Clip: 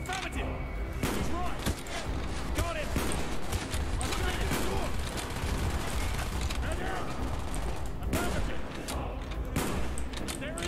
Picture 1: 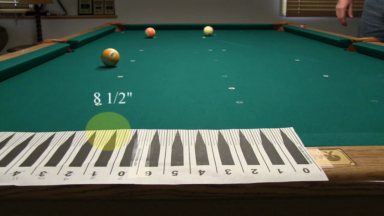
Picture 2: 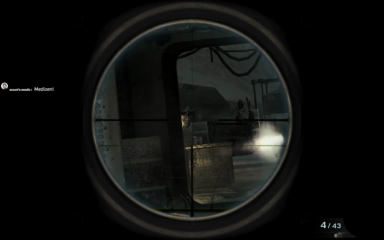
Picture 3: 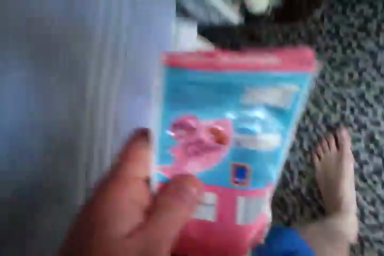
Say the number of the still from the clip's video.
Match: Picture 2